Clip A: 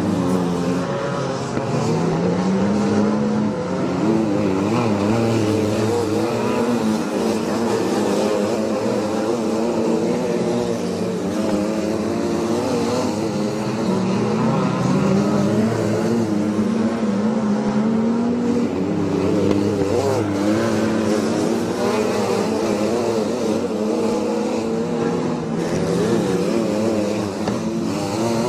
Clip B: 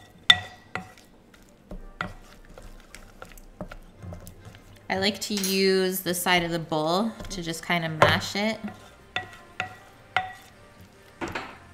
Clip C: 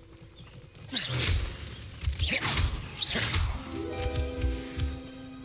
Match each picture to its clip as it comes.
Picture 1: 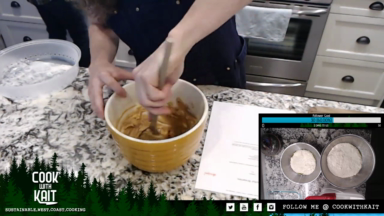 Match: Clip B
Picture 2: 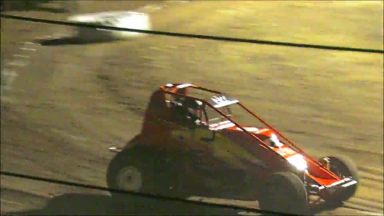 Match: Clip A